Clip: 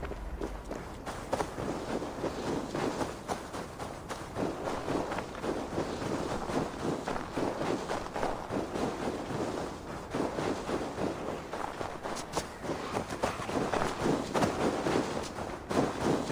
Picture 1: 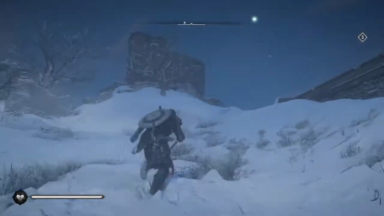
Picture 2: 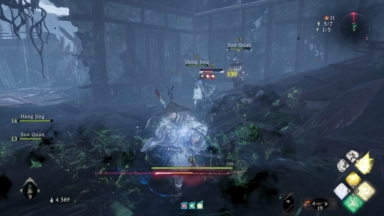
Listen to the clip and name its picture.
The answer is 1